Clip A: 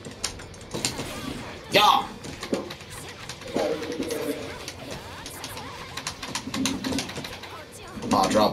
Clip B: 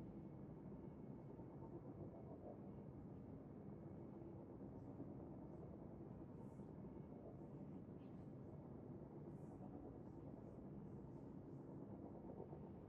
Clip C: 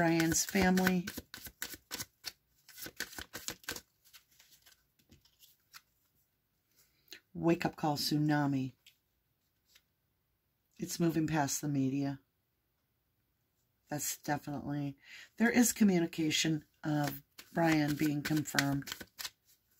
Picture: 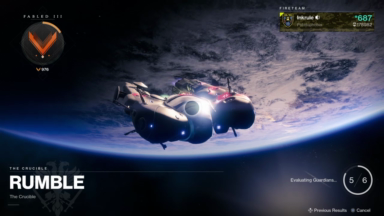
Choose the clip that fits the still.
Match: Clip B